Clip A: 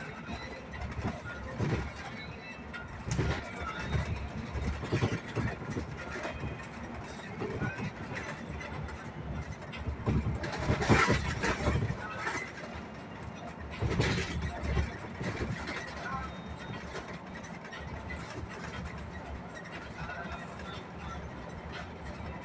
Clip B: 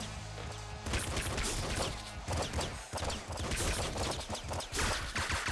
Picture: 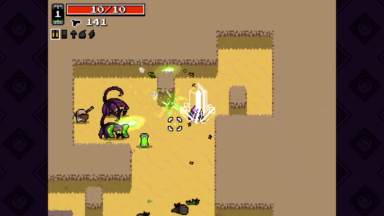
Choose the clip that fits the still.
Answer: B